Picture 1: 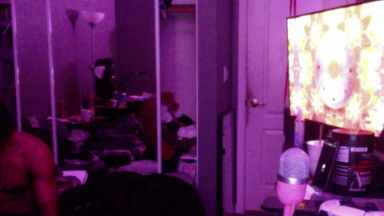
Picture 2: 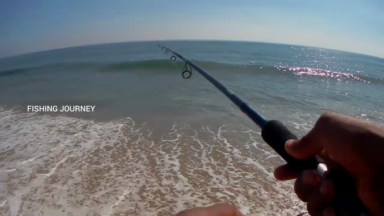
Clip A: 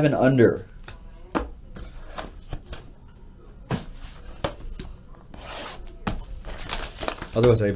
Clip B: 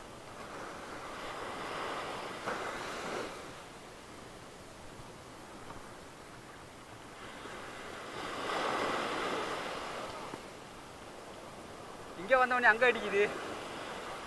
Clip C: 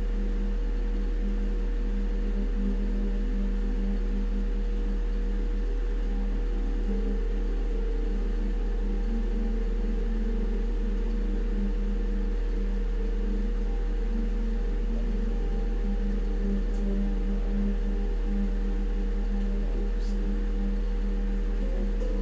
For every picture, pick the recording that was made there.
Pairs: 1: C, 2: B